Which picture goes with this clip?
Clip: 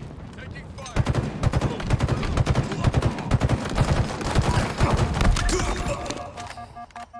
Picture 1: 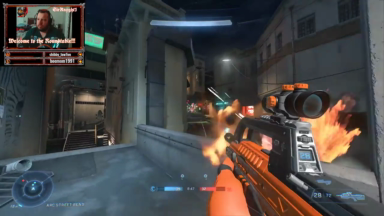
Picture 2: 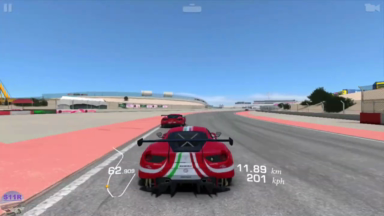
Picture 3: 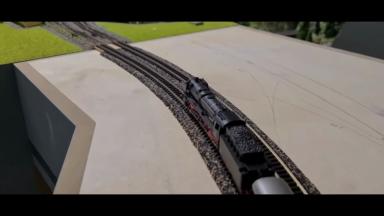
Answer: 1